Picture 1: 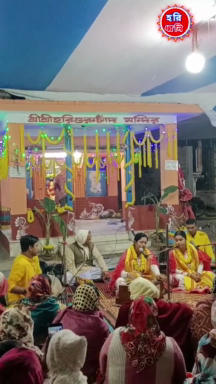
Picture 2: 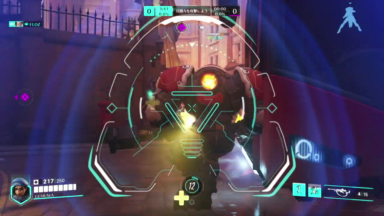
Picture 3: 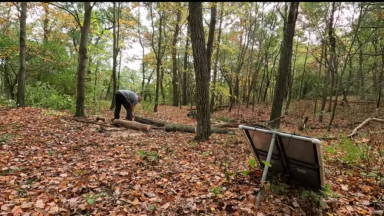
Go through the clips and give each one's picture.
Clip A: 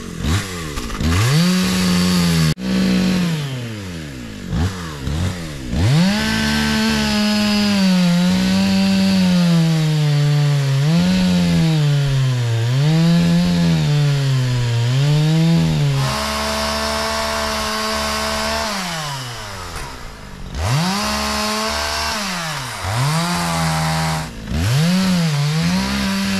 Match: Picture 3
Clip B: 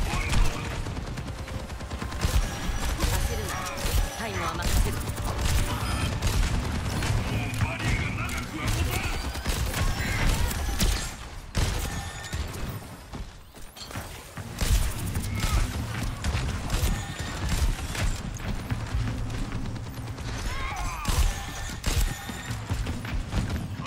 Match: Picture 2